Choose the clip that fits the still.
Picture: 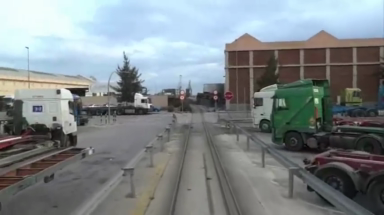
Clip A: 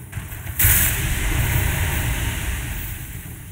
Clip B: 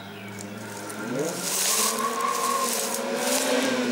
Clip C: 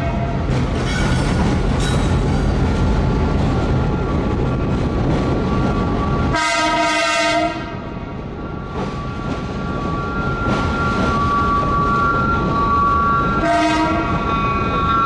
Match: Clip C